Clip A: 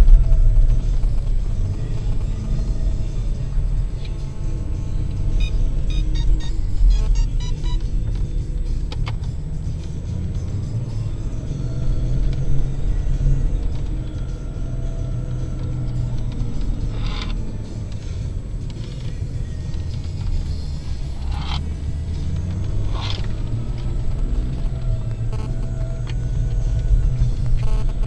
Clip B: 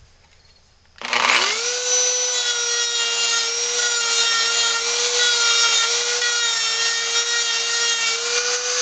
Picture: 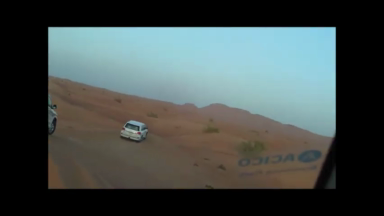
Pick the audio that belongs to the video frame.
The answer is A